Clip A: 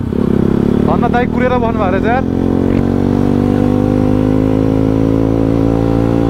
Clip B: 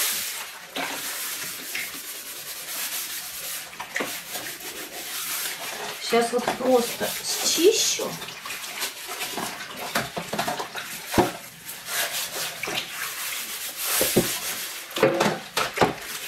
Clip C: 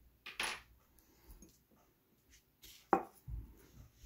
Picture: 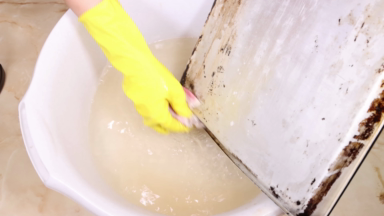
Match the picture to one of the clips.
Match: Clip B